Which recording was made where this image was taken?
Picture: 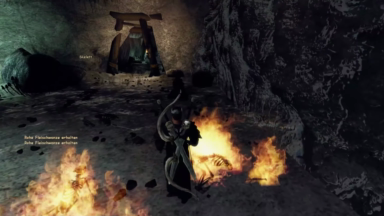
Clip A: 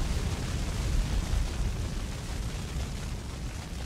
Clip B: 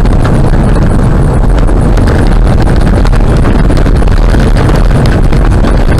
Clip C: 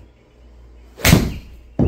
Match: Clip A